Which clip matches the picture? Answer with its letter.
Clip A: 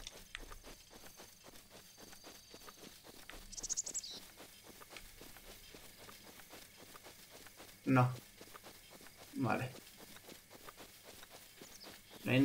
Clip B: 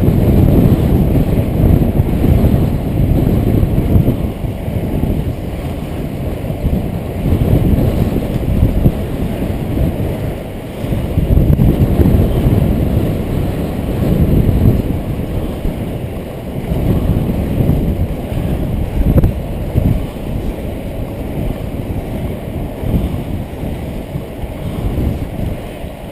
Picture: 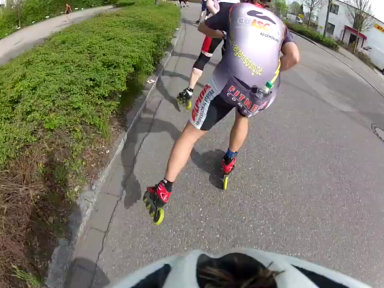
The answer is B